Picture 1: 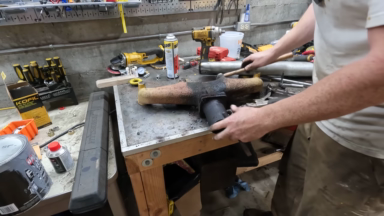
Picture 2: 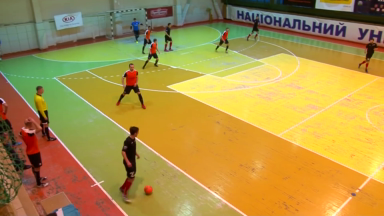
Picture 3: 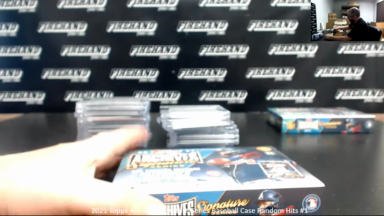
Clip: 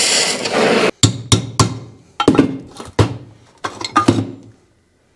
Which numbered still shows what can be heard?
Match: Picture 1